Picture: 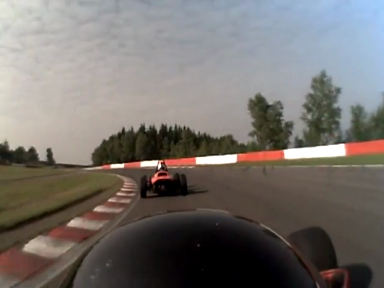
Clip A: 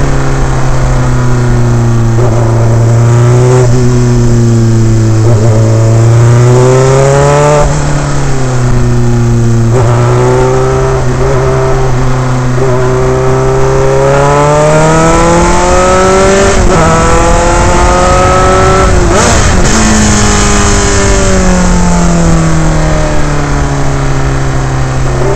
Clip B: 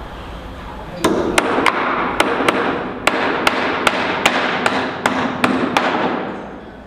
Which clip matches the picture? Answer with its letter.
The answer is A